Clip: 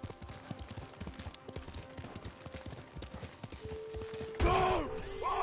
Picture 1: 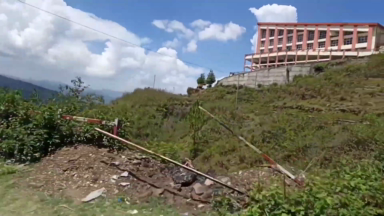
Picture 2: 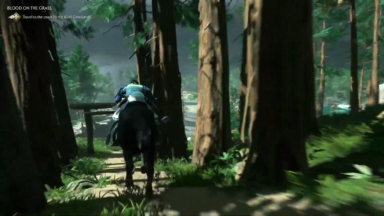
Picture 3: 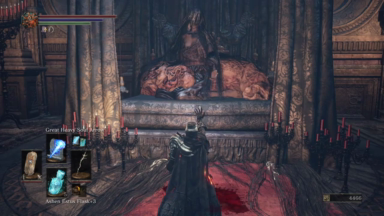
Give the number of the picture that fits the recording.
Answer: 2